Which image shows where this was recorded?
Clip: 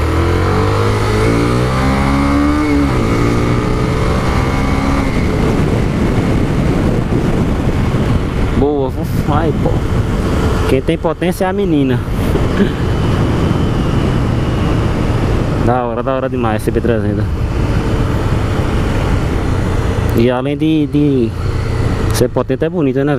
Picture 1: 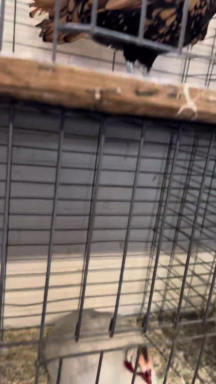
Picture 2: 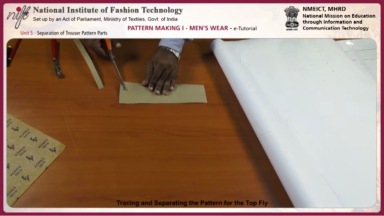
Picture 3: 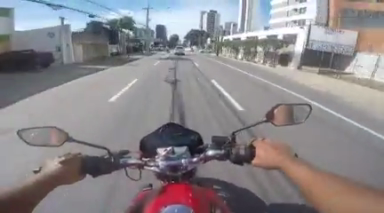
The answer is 3